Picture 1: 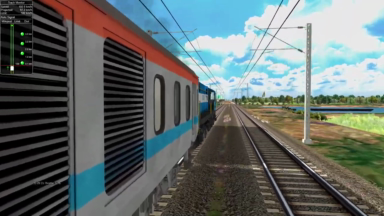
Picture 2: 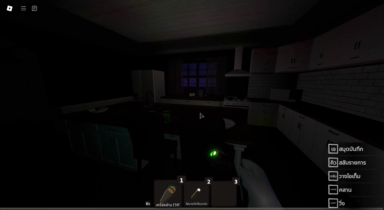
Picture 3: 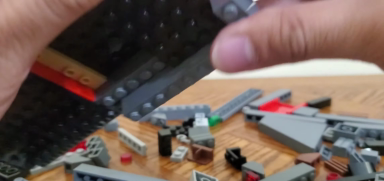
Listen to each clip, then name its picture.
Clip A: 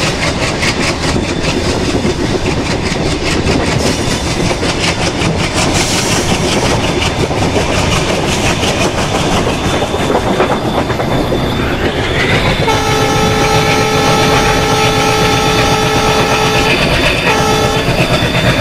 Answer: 1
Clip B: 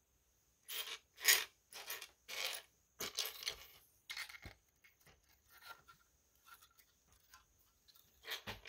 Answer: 3